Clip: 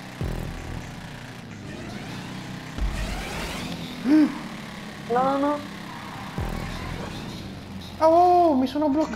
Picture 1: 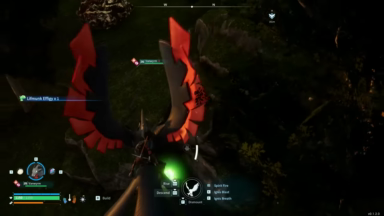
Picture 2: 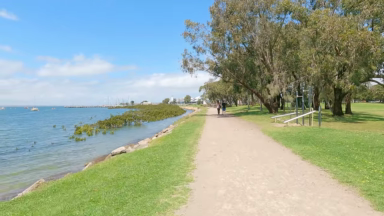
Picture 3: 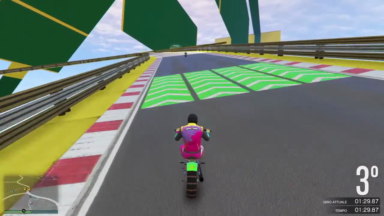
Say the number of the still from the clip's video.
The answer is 3